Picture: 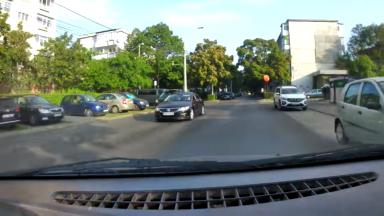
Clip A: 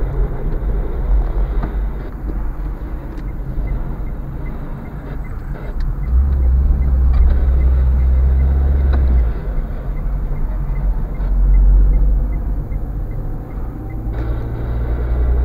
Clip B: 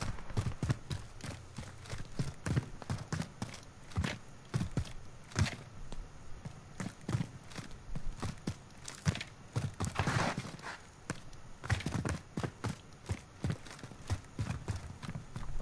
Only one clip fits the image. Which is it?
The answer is A